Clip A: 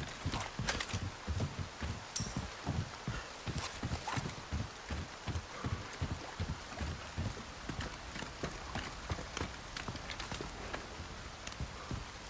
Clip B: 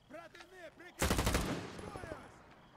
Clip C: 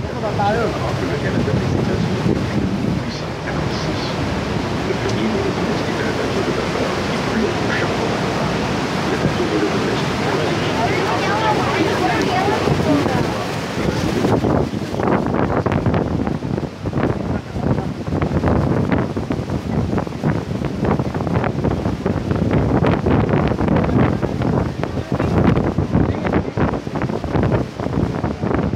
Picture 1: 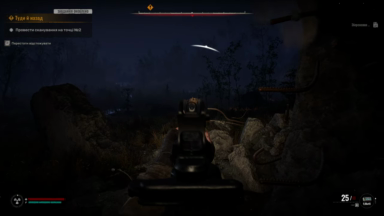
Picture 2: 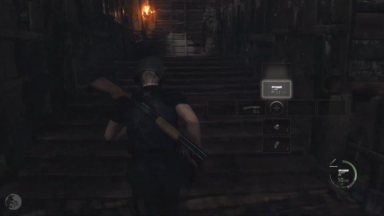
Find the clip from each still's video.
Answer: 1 B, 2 A